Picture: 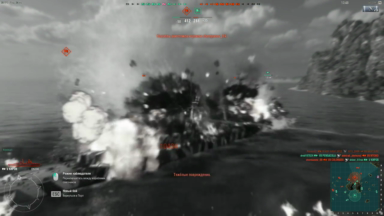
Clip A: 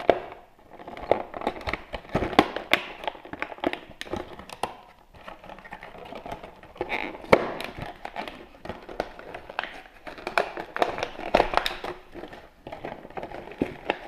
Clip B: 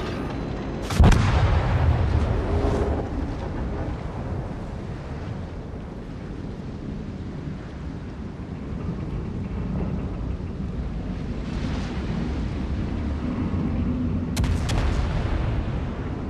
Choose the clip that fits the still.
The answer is B